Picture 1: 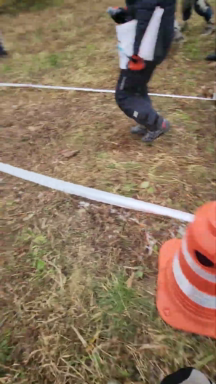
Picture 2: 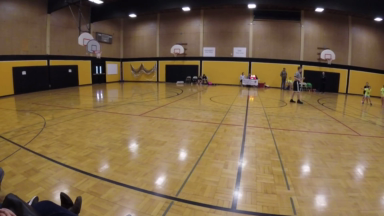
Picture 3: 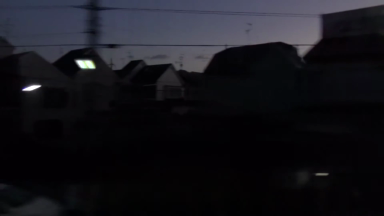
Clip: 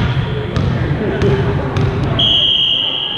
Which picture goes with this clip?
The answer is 2